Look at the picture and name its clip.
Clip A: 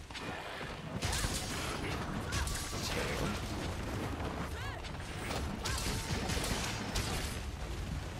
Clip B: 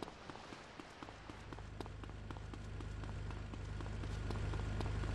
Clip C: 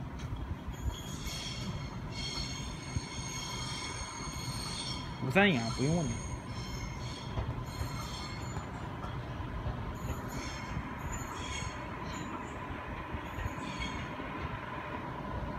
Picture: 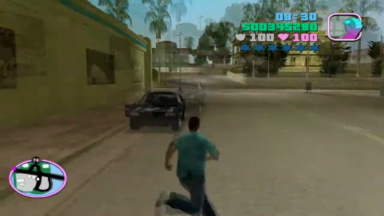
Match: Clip B